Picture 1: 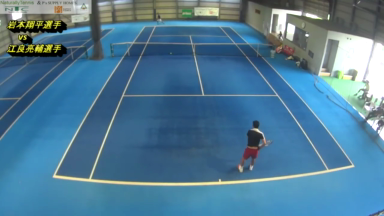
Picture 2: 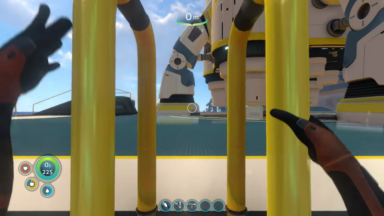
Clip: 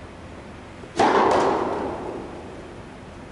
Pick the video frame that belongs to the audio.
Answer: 1